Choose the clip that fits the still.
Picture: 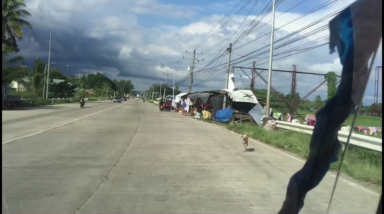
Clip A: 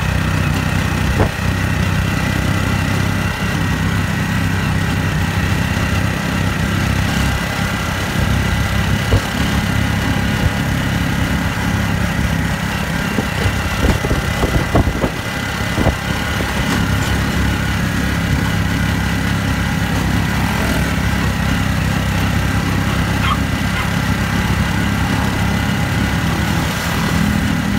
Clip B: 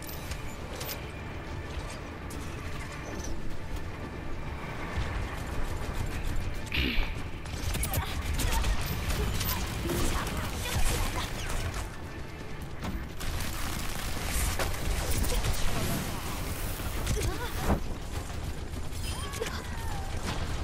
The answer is A